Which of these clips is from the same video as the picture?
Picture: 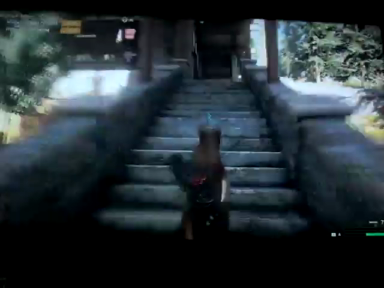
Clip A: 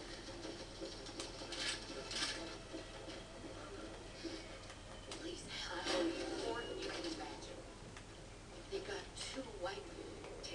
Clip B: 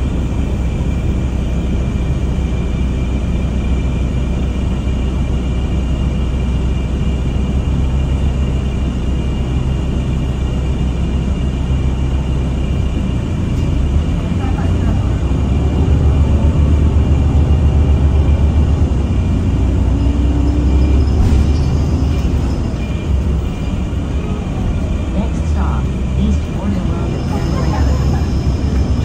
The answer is A